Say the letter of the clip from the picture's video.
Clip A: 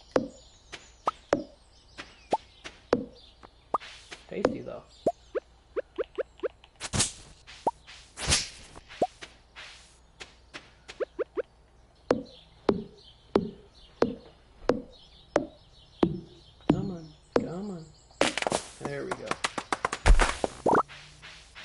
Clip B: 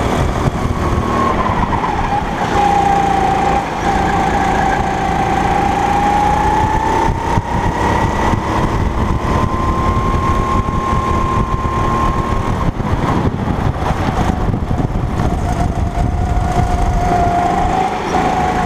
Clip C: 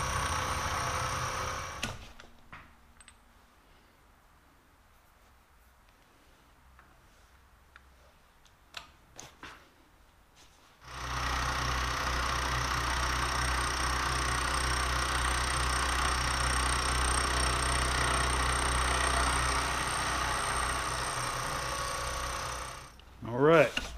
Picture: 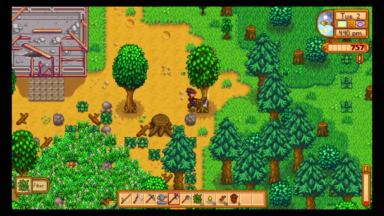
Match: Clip A